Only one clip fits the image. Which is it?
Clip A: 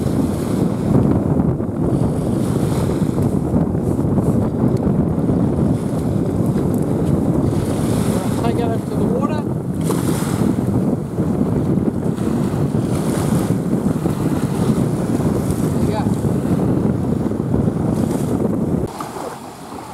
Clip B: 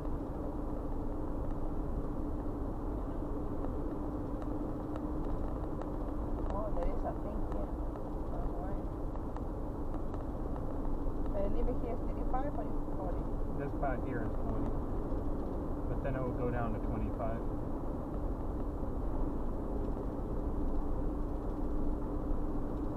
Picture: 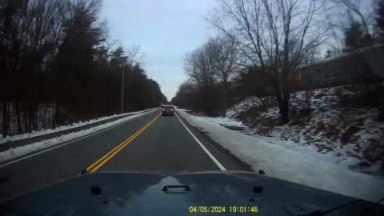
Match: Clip B